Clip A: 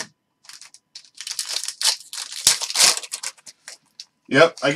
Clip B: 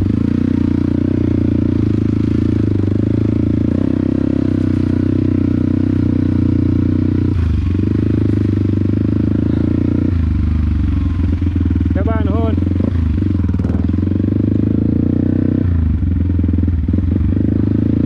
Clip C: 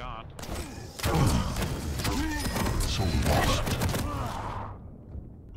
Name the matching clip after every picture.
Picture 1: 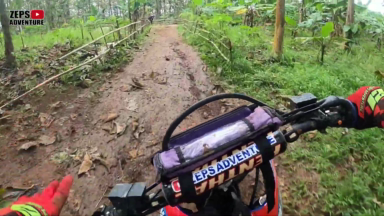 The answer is B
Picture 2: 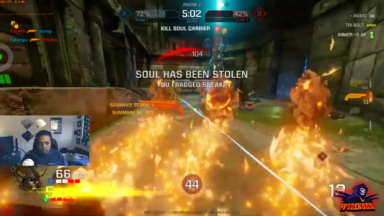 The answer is C